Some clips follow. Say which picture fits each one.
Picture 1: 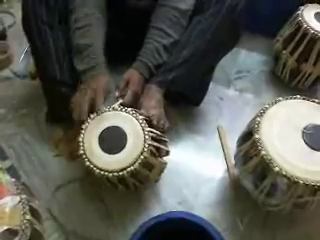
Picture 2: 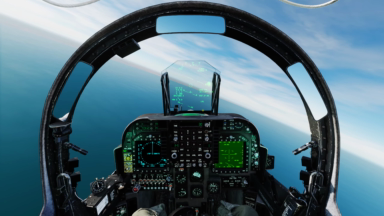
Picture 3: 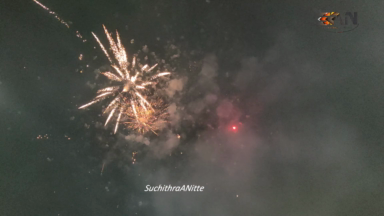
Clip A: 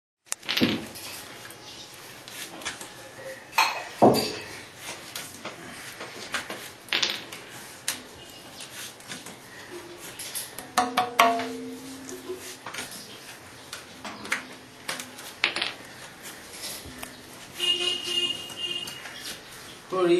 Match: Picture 1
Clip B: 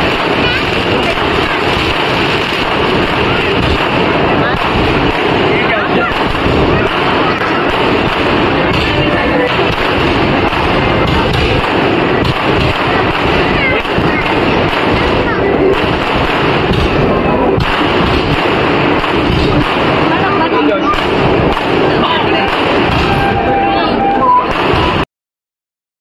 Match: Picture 3